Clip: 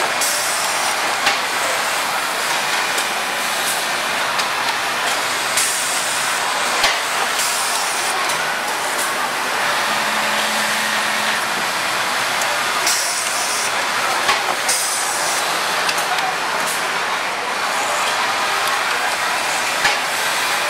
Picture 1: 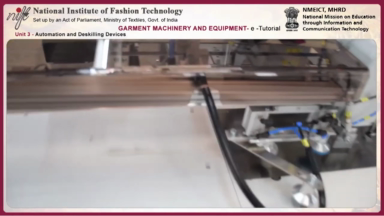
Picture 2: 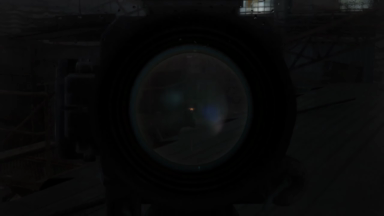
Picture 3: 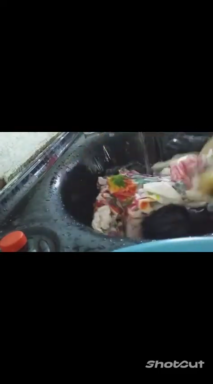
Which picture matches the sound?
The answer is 1